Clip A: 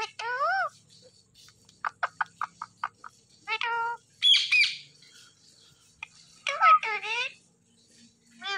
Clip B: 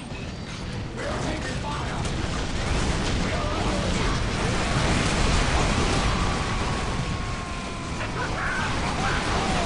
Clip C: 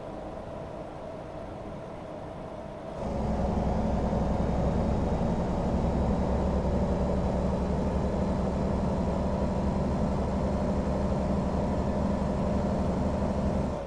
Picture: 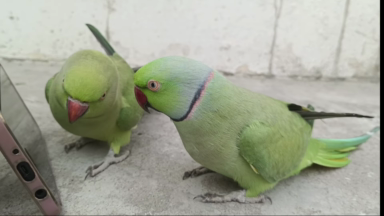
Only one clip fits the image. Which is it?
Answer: A